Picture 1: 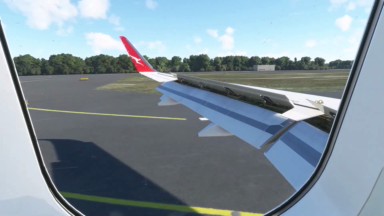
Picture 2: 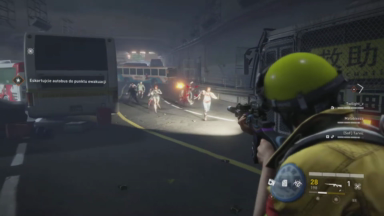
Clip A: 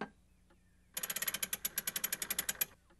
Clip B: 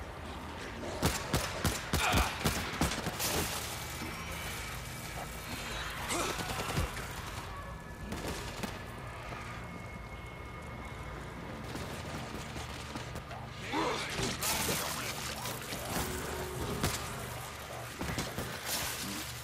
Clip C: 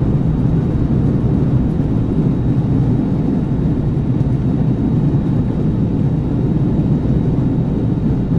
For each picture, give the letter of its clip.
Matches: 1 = C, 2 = B